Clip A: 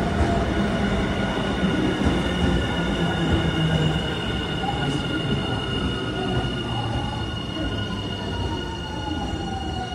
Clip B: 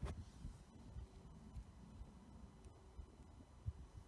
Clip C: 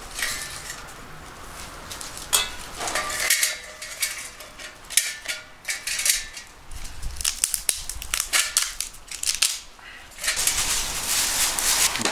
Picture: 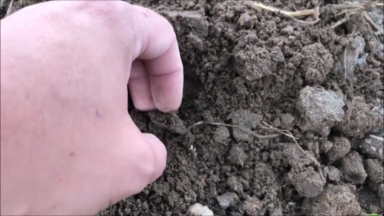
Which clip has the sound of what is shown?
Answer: B